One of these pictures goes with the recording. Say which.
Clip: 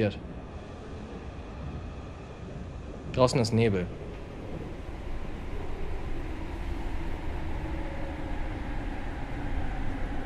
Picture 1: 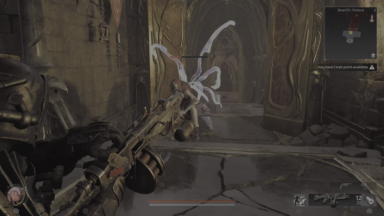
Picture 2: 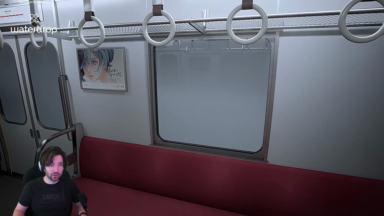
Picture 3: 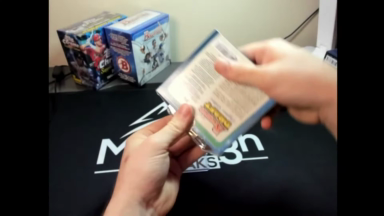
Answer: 2